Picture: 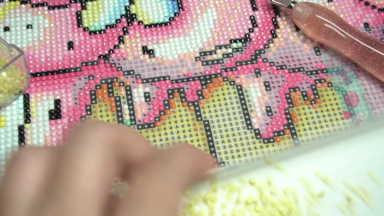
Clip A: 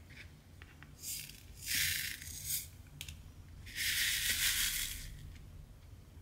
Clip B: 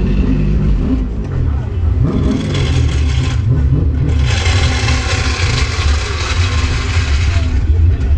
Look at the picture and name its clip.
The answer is A